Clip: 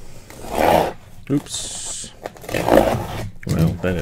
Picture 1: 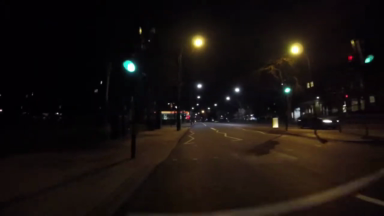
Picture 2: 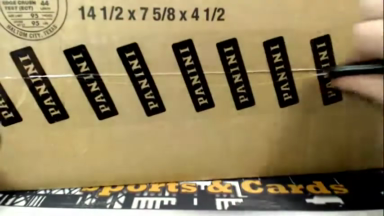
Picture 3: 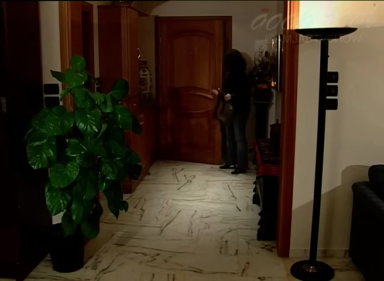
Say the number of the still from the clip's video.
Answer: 2